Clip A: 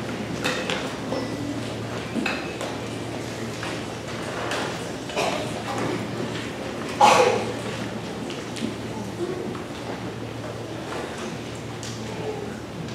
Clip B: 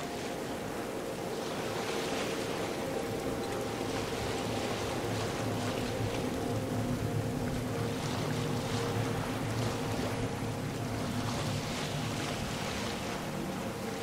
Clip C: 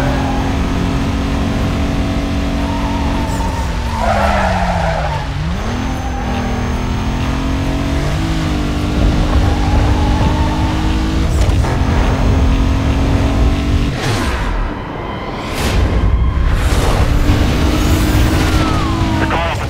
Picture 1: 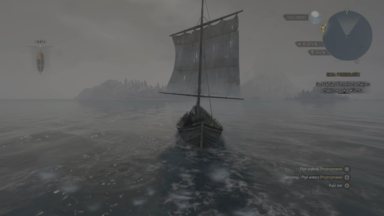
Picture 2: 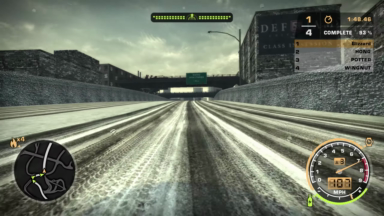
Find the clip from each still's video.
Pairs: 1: B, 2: C